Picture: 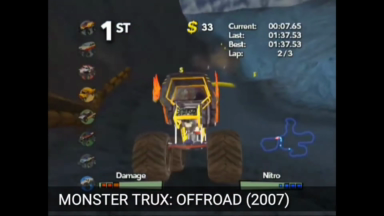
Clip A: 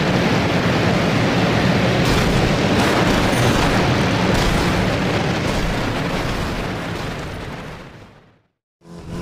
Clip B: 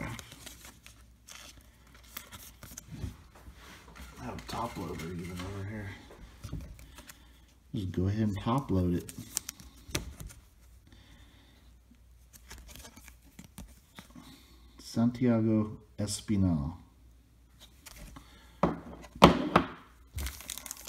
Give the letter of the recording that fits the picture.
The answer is A